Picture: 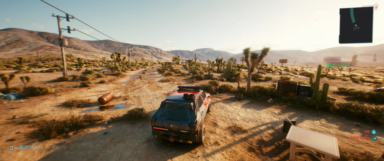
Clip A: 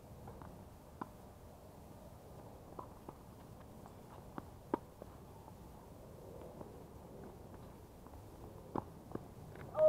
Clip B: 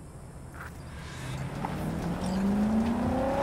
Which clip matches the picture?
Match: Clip B